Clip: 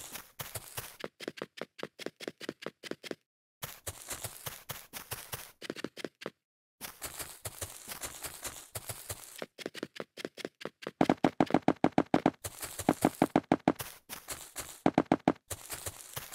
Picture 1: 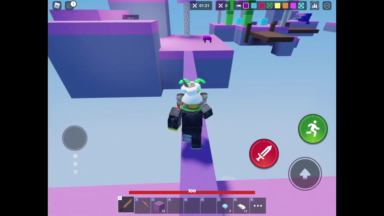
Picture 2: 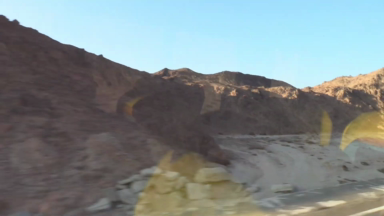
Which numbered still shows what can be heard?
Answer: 1